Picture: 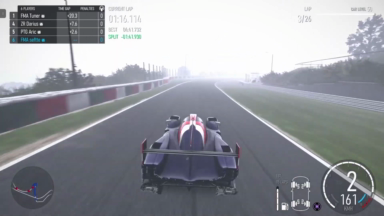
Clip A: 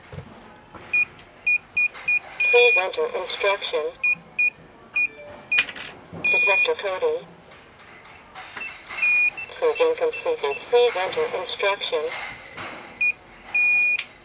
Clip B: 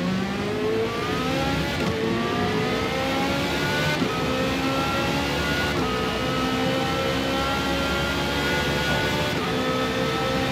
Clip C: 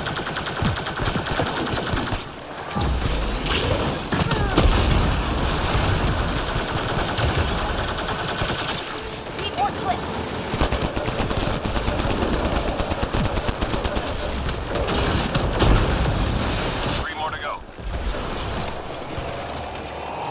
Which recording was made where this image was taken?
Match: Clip B